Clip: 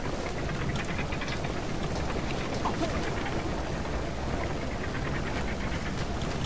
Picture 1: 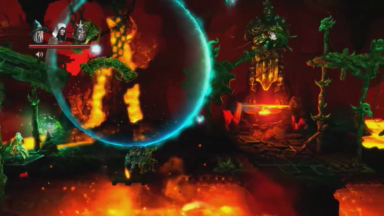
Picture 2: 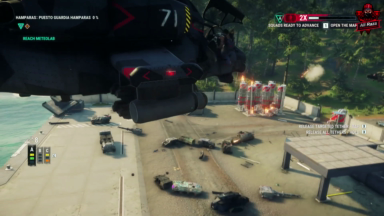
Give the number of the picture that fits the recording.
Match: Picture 1